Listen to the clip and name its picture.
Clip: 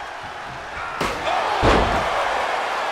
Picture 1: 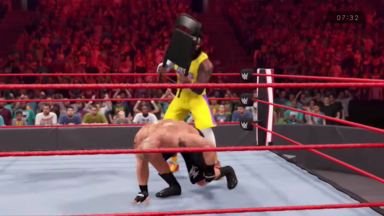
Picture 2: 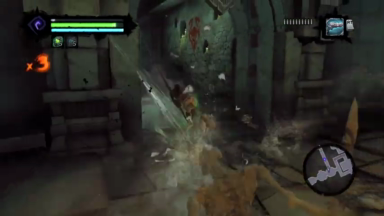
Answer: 1